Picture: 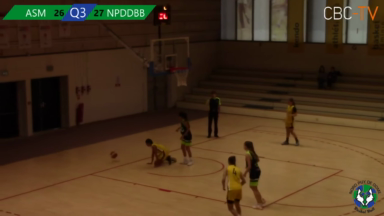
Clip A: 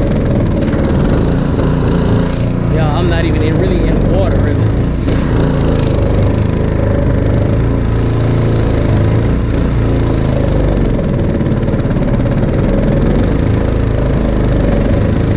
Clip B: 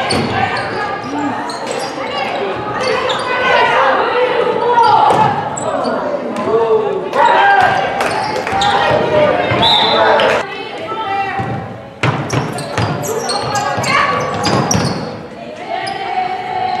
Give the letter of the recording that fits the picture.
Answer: B